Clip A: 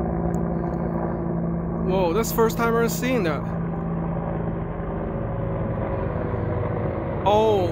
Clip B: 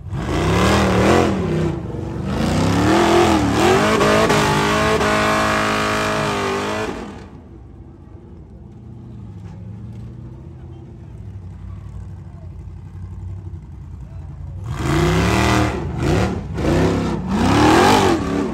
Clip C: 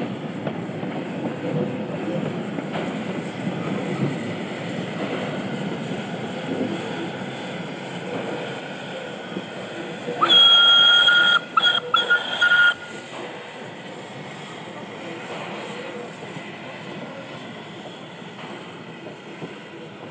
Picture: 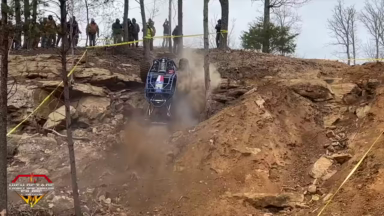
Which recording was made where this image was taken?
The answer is B